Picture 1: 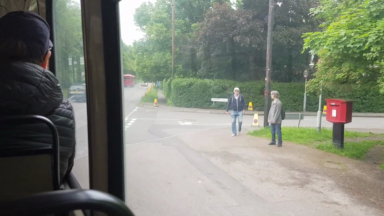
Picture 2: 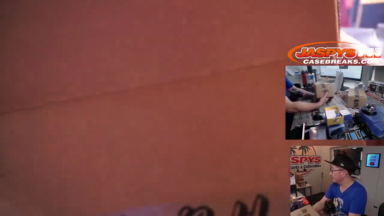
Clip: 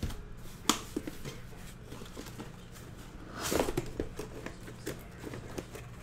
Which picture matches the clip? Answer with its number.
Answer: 2